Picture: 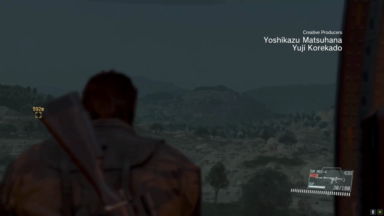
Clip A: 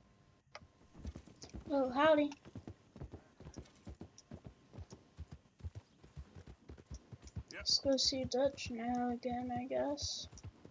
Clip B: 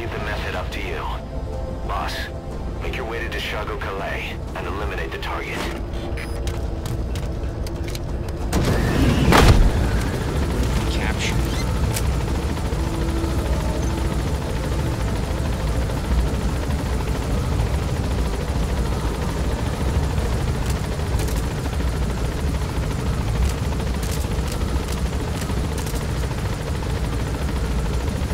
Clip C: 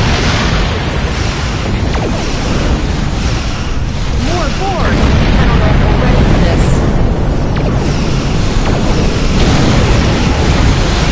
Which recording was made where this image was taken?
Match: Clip B